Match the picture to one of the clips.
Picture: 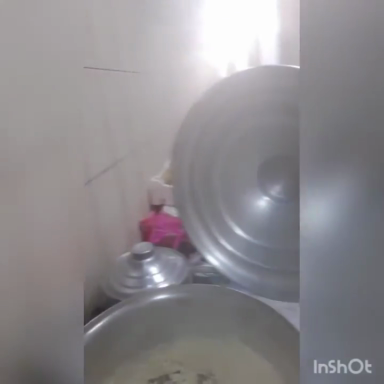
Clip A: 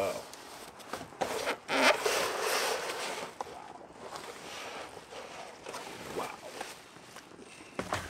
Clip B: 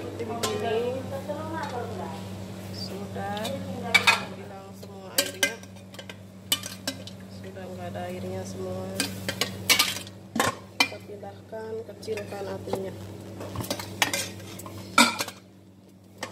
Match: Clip B